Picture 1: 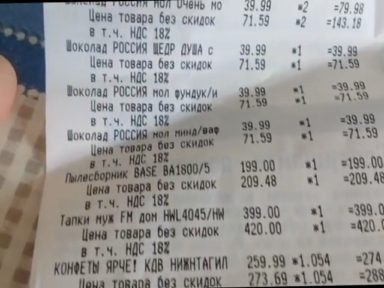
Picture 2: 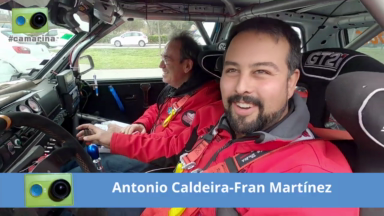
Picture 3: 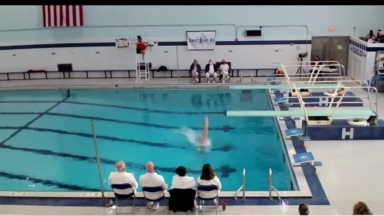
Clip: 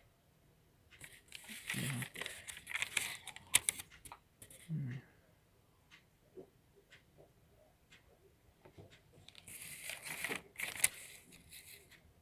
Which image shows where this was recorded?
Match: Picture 1